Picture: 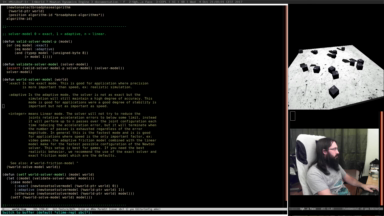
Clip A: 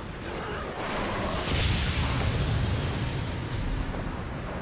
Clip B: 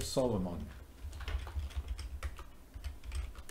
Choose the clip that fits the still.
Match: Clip B